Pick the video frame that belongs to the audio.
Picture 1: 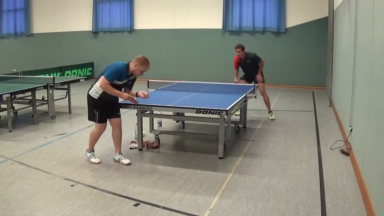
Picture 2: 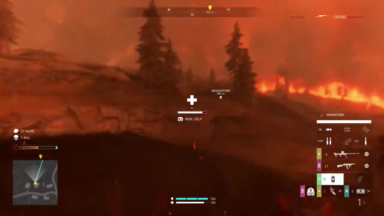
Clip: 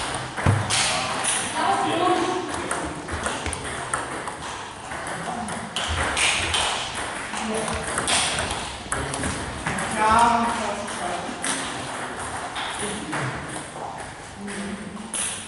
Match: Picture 1